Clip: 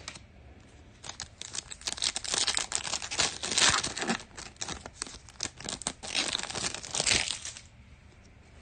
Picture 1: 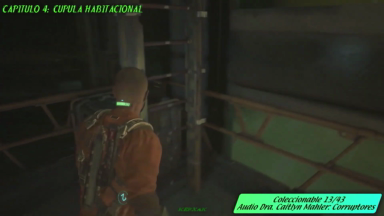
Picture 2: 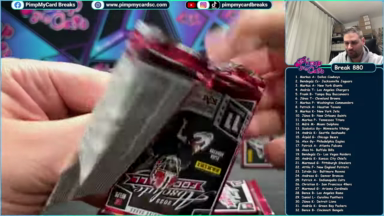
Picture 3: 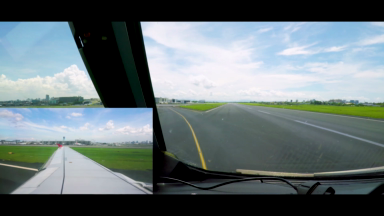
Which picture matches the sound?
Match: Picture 2